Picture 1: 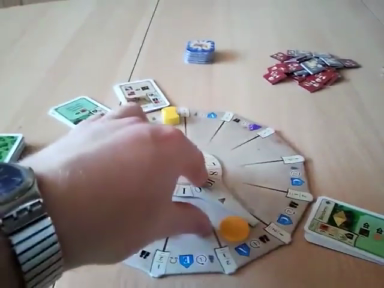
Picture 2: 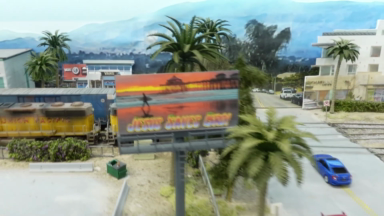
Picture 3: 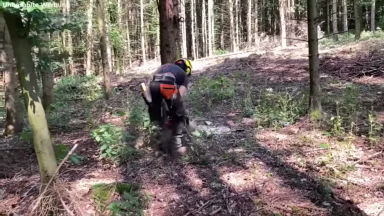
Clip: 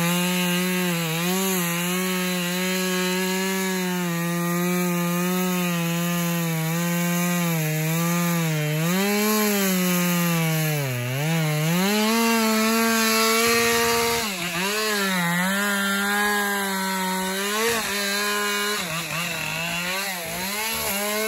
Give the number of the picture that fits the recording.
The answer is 3